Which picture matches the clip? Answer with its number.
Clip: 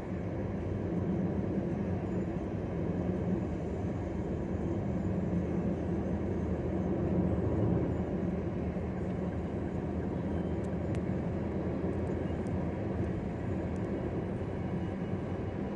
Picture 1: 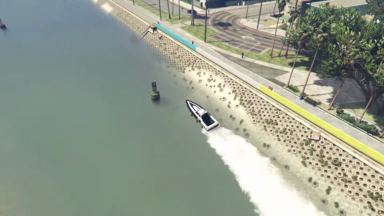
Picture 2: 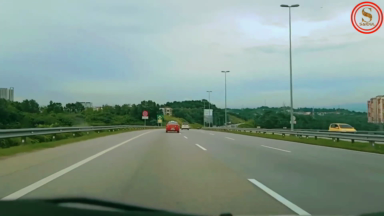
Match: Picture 2